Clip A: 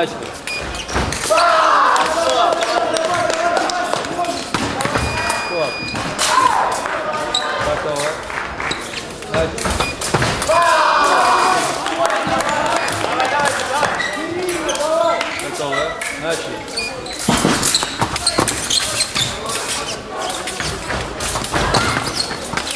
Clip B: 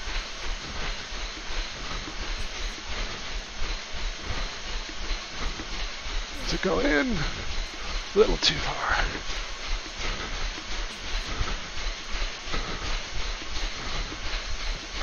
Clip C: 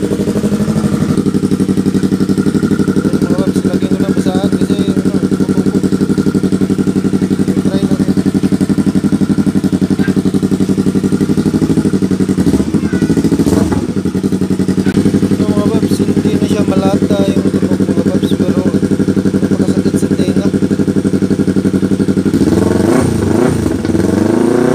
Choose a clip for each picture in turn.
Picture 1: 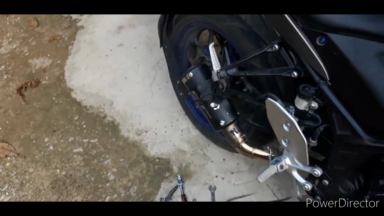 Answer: C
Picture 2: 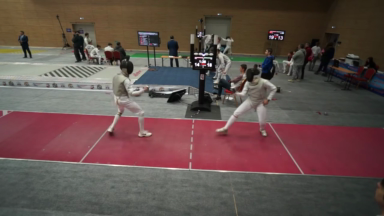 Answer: A